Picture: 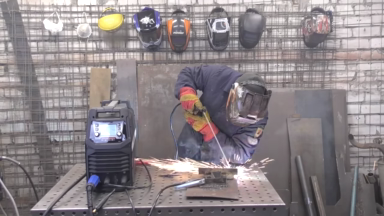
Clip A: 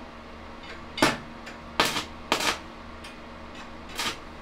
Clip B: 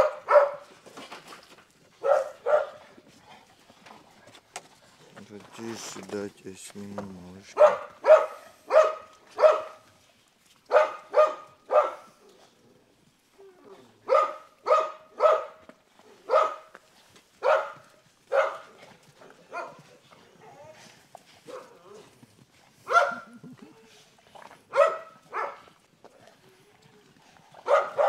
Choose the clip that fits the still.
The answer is A